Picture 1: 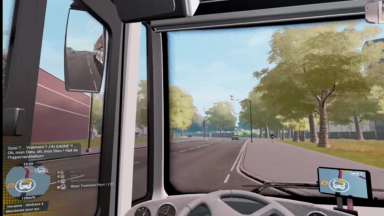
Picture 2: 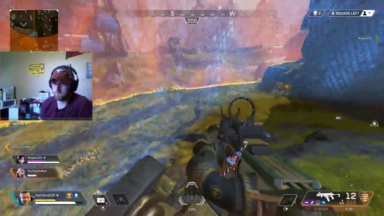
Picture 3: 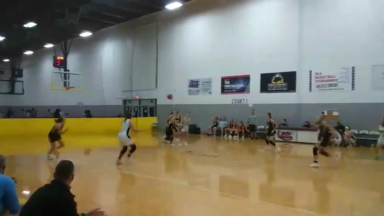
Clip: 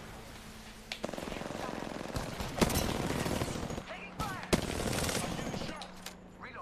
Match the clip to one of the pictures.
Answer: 2